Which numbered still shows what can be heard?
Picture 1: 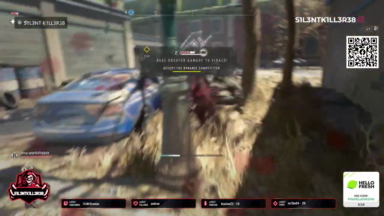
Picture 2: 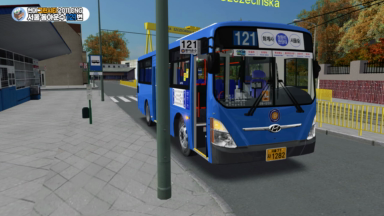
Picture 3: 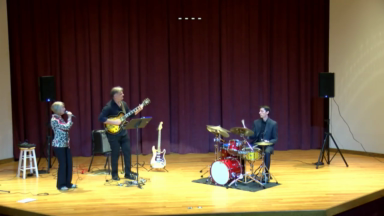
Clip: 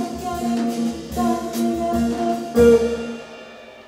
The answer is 3